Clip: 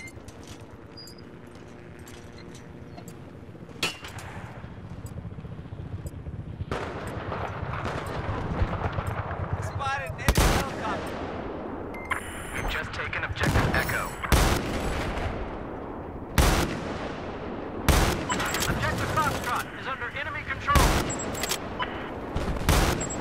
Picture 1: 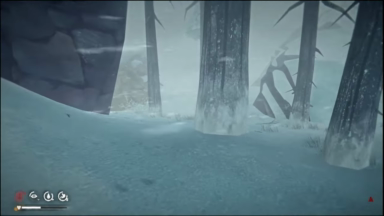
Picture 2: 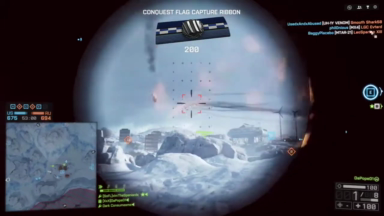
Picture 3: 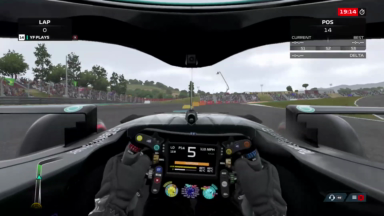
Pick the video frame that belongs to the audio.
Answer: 2